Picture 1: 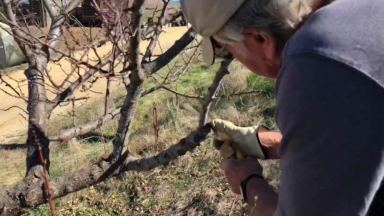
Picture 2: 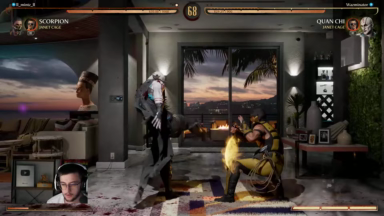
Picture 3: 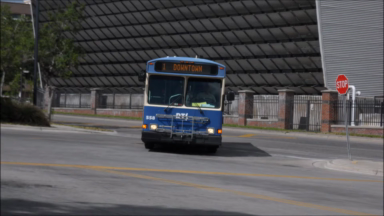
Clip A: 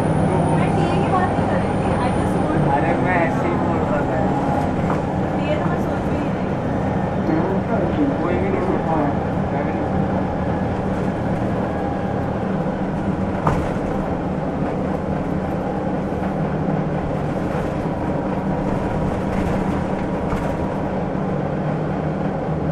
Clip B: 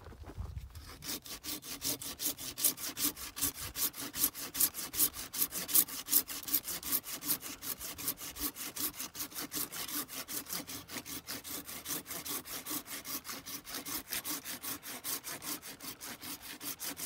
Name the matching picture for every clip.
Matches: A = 3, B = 1